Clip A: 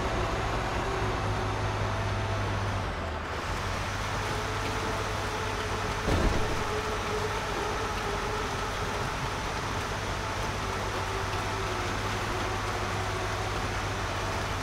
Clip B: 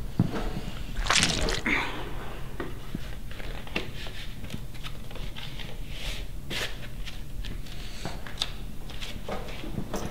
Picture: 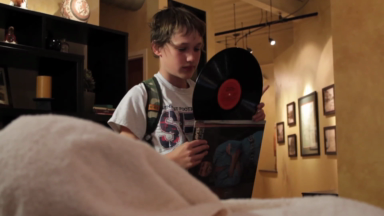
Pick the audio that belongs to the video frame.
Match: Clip B